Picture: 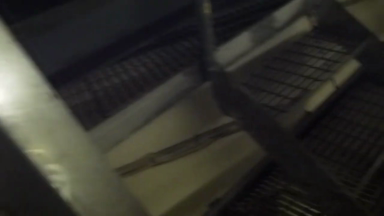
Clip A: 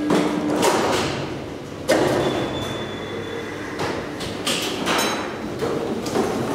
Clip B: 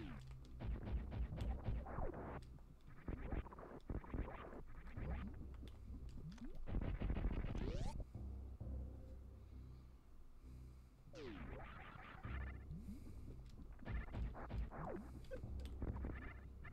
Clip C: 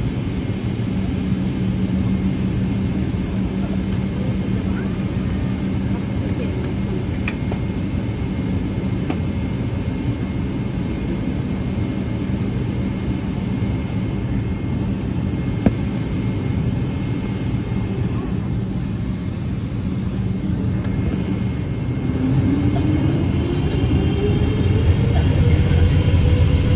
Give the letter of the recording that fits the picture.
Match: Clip A